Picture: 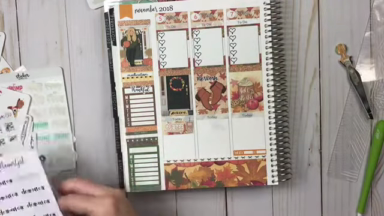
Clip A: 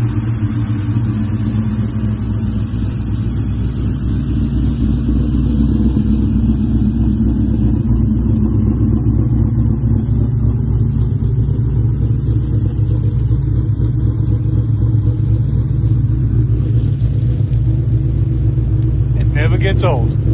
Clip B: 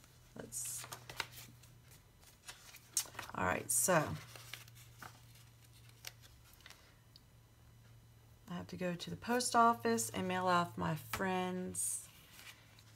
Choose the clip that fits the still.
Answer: B